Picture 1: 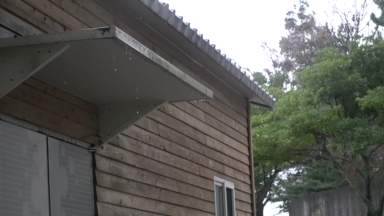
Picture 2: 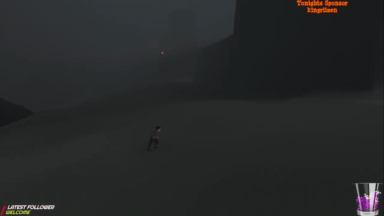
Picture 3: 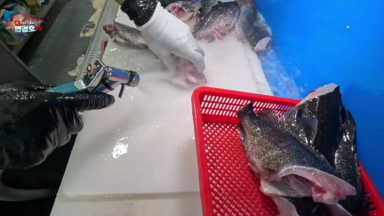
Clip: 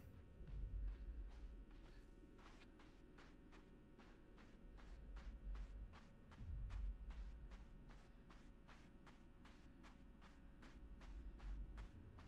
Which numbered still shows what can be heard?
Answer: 2